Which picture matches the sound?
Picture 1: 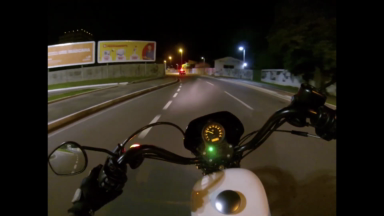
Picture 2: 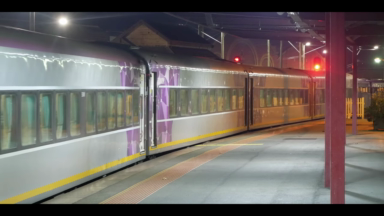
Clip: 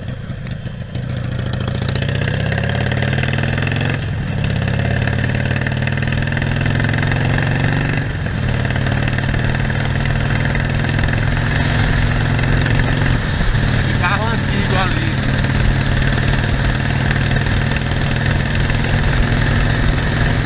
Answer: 1